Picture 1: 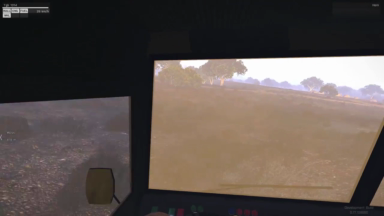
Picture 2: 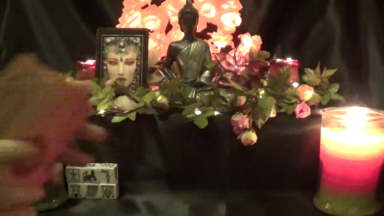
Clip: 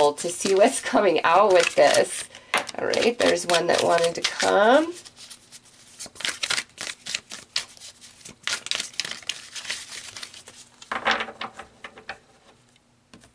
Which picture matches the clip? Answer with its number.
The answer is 2